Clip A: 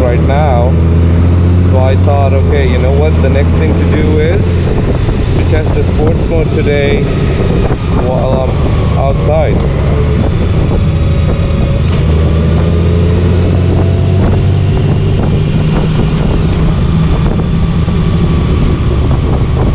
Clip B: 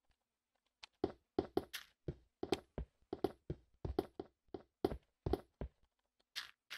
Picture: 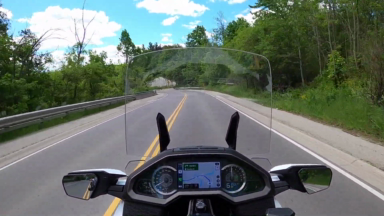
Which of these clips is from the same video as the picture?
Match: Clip A